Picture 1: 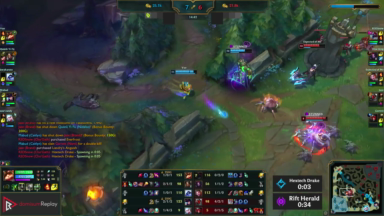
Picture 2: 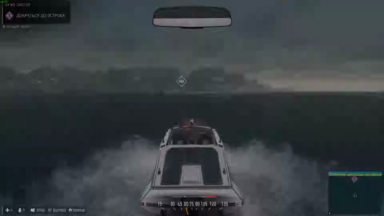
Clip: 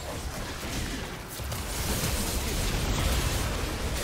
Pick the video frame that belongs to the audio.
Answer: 1